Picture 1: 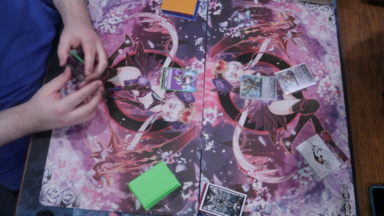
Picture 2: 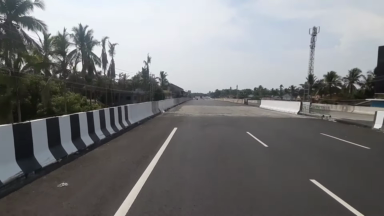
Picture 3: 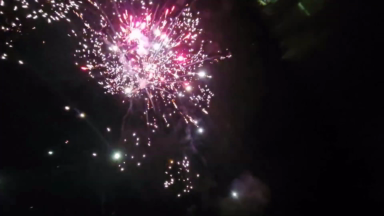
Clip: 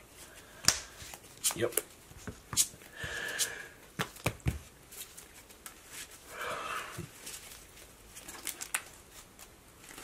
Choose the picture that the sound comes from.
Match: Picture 1